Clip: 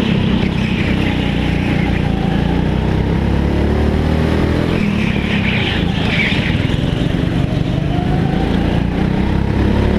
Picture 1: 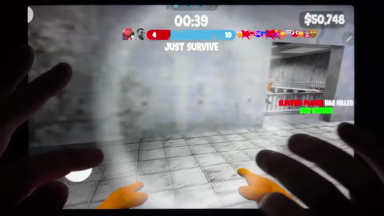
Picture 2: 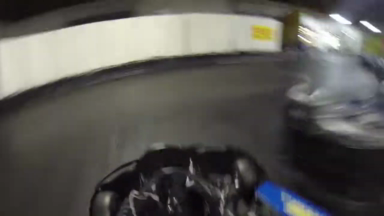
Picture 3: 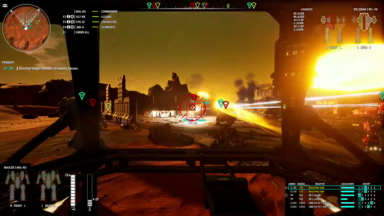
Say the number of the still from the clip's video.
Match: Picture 2